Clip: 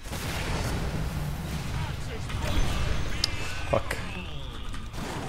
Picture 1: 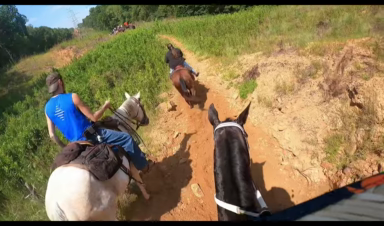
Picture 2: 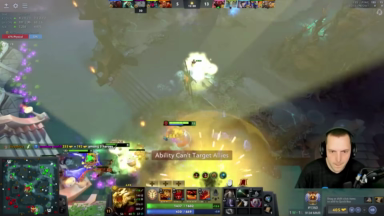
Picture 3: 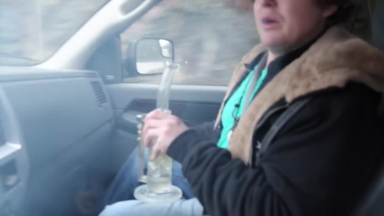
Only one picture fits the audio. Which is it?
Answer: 2